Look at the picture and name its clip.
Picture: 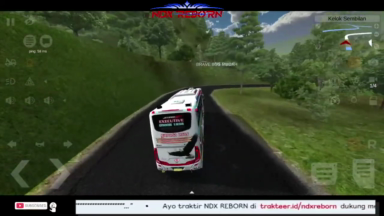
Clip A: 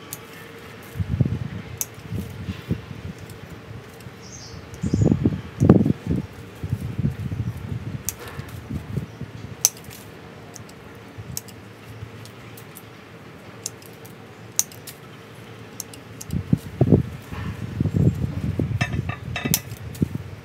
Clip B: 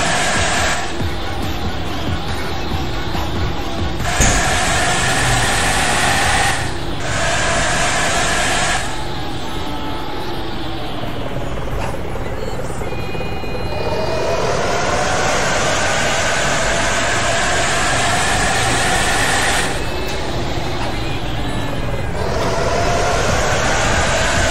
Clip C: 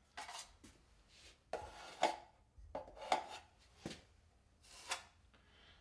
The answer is B